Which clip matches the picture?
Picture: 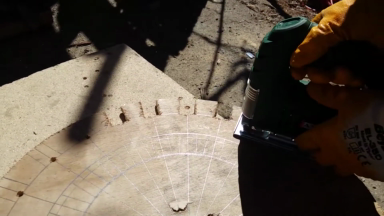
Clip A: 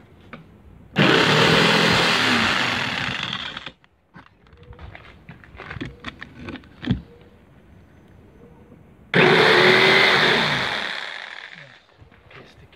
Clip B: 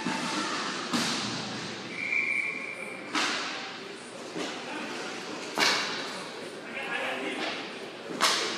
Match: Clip A